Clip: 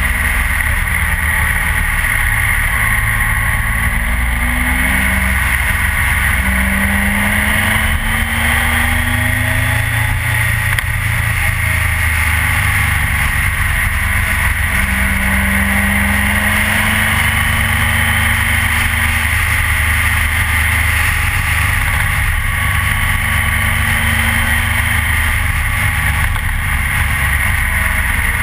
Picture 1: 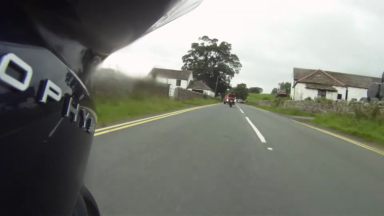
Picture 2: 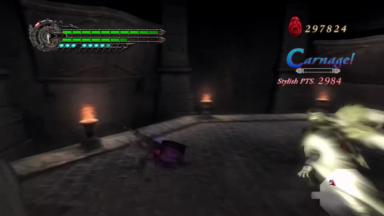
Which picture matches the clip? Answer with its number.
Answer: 1